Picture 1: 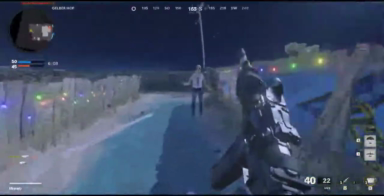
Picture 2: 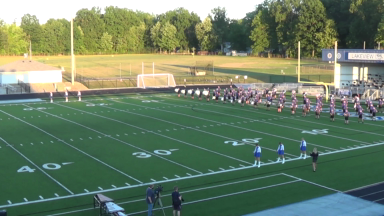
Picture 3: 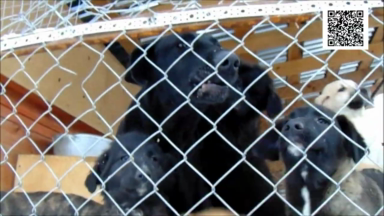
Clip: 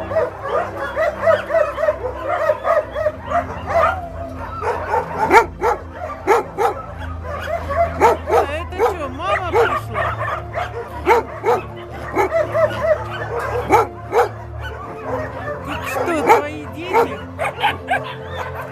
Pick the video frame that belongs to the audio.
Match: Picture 3